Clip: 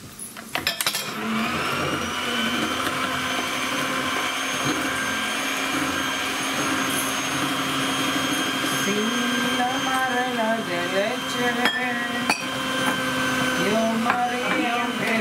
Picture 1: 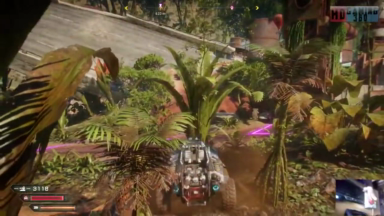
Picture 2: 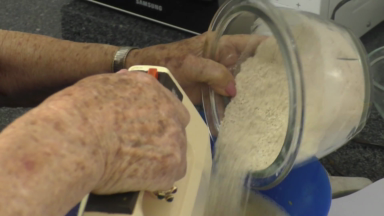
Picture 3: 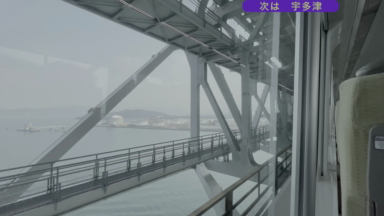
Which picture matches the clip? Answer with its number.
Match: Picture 2